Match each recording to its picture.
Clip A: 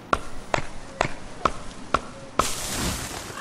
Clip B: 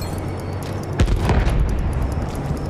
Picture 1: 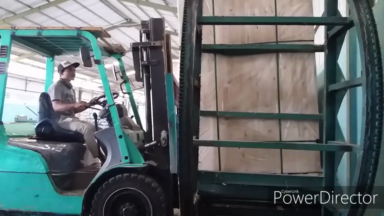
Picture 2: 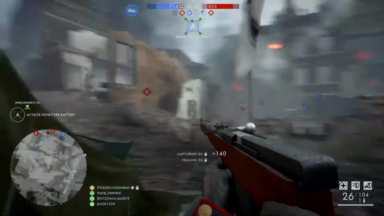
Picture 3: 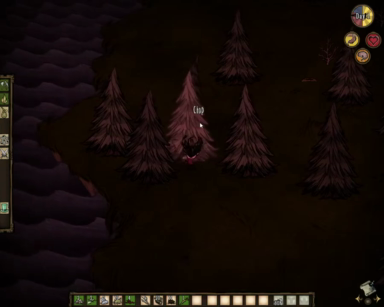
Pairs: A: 3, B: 2